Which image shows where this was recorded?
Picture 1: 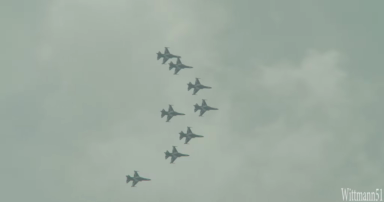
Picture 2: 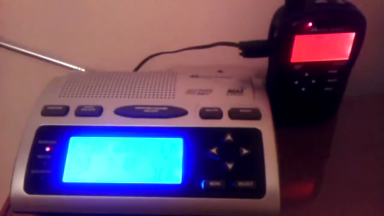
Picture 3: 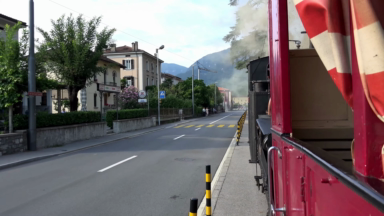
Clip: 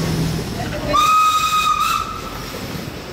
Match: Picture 3